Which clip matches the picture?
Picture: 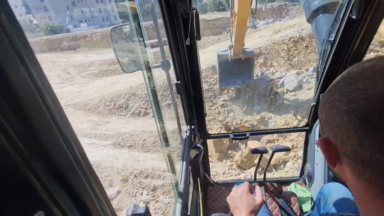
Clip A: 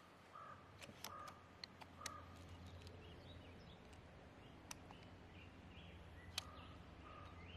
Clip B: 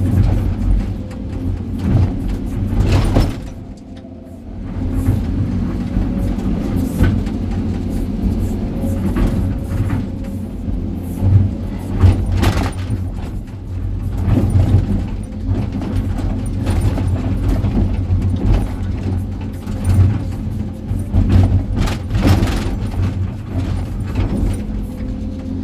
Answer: B